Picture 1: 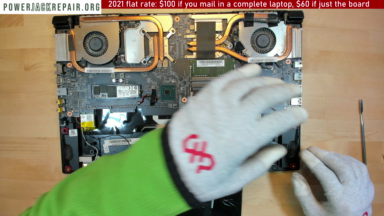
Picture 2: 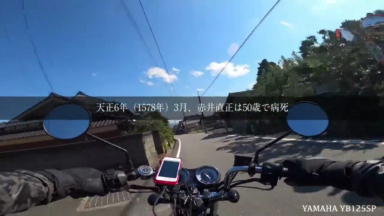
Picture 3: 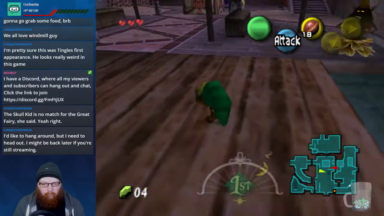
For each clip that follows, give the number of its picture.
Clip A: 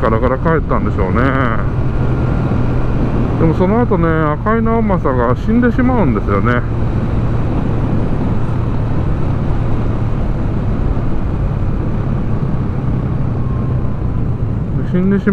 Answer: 2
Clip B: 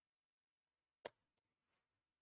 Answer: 1